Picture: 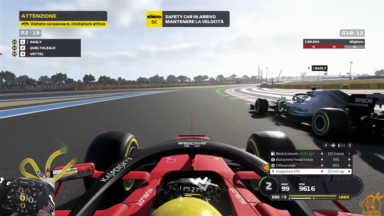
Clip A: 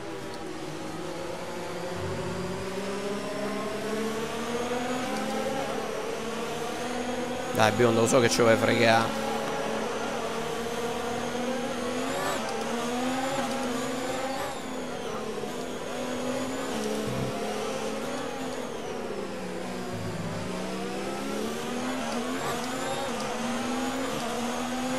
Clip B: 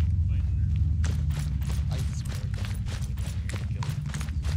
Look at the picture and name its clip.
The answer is A